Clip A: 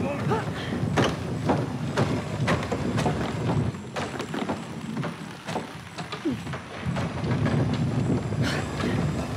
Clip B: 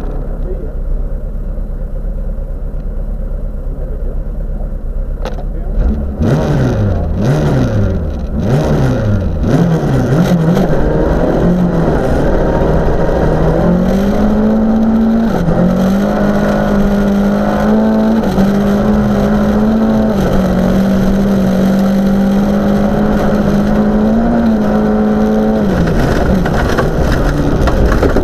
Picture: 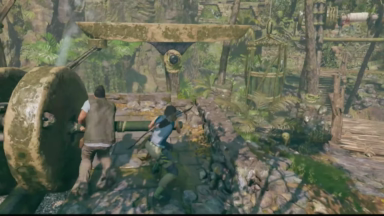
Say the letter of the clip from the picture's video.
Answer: A